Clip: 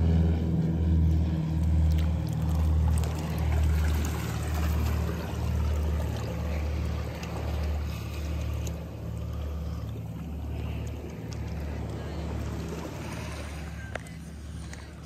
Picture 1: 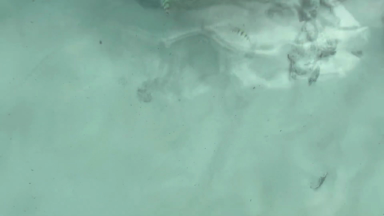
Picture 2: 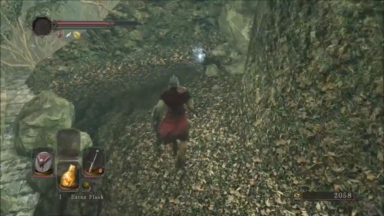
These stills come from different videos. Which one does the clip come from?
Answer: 1